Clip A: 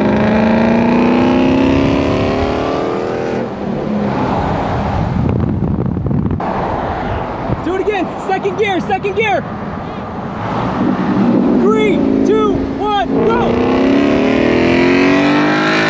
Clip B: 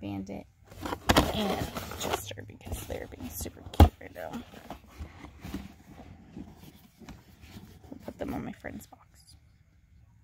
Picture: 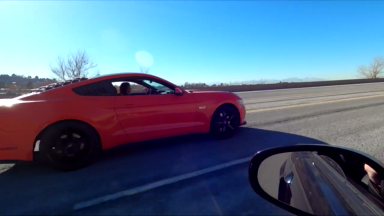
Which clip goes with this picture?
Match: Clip A